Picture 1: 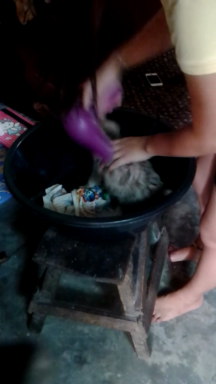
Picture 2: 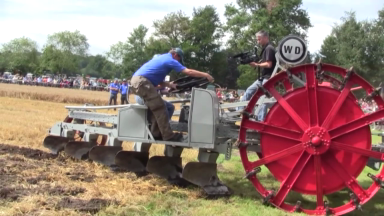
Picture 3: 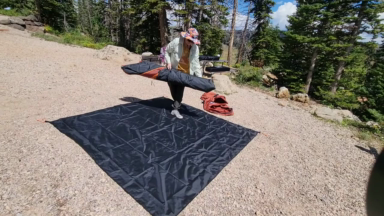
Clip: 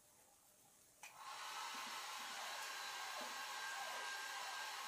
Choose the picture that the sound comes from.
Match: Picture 1